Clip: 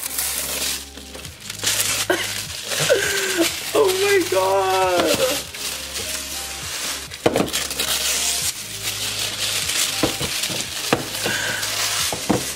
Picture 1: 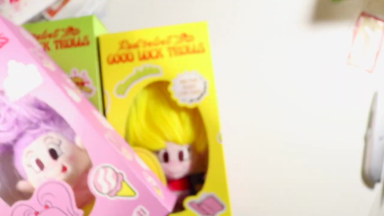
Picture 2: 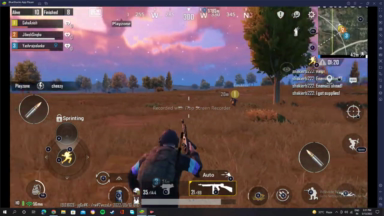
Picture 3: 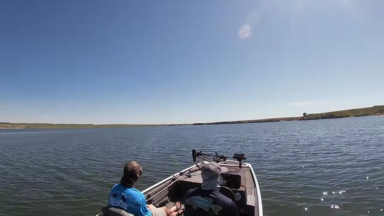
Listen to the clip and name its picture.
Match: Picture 1